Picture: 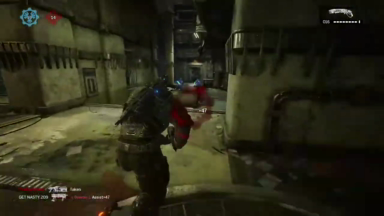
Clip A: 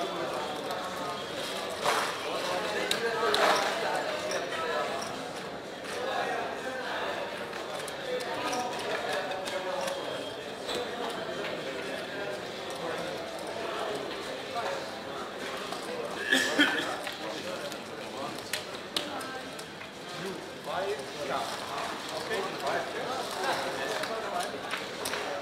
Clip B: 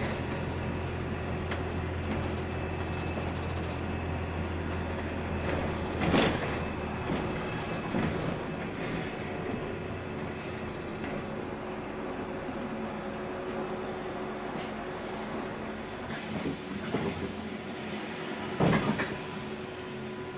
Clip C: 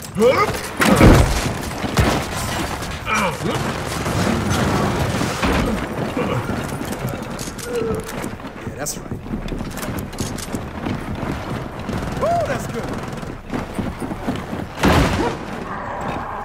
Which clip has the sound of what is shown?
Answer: C